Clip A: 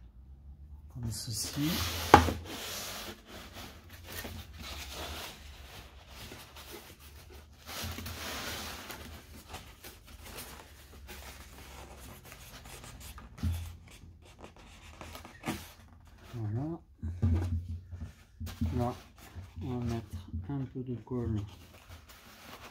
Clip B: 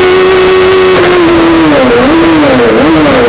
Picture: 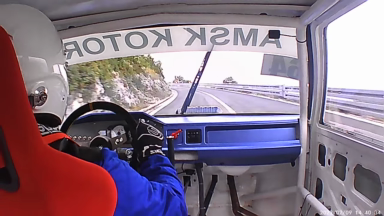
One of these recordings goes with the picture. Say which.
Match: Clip B